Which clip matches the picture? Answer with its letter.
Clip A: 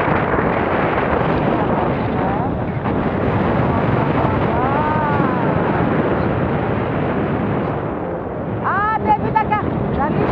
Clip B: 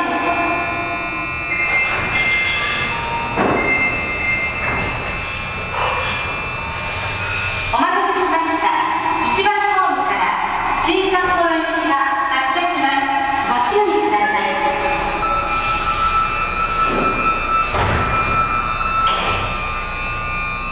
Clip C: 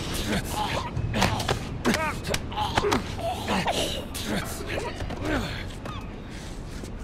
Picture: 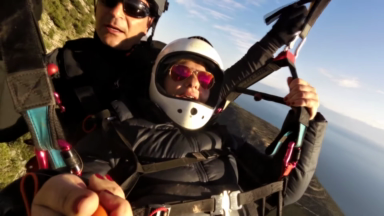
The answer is A